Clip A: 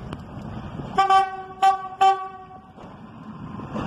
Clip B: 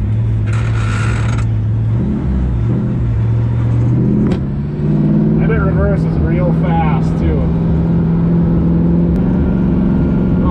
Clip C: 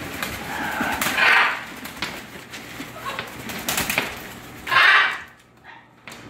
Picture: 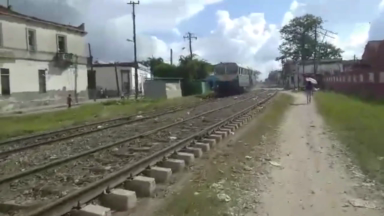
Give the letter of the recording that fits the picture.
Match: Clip A